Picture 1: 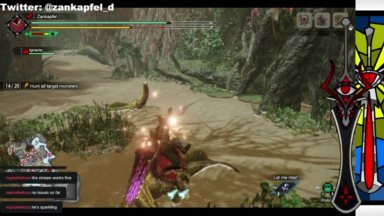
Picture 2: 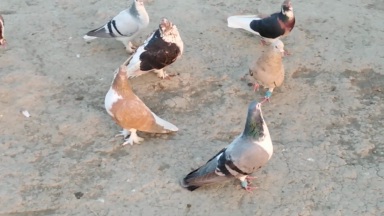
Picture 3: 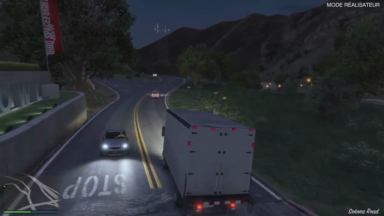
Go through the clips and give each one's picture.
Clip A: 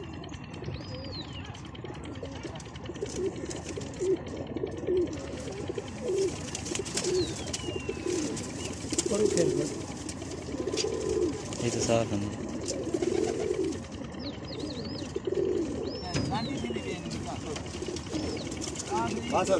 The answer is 2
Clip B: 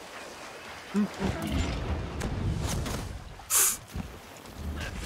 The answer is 1